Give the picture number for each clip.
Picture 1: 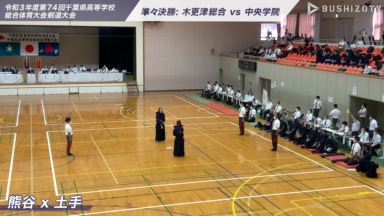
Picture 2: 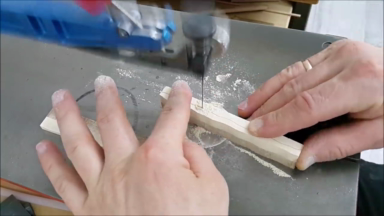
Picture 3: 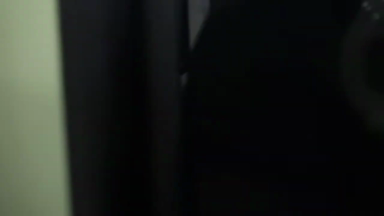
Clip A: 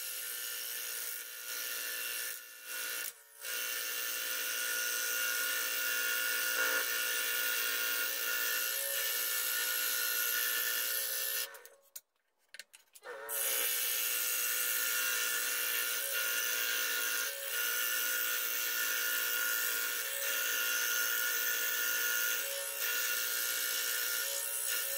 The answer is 2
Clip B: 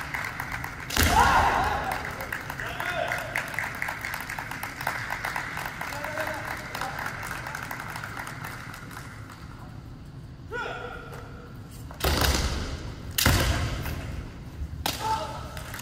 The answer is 1